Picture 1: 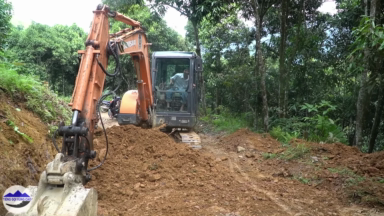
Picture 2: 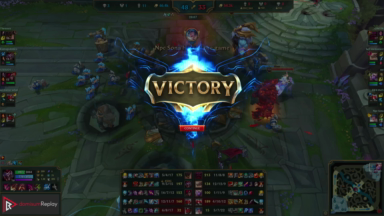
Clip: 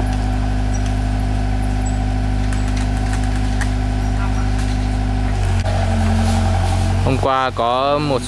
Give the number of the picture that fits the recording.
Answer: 1